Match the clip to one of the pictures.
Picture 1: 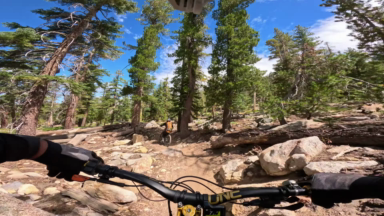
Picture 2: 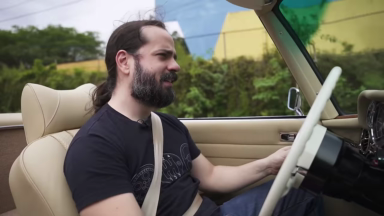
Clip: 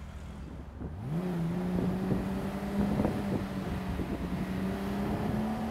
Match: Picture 2